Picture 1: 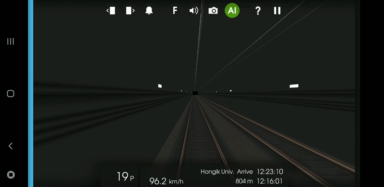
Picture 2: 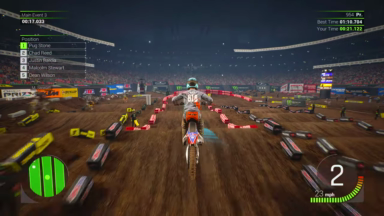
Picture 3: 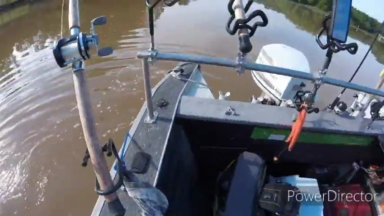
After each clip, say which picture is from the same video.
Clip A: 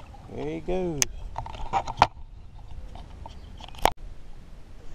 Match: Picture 3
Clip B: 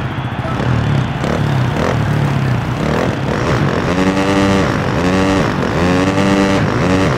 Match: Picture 2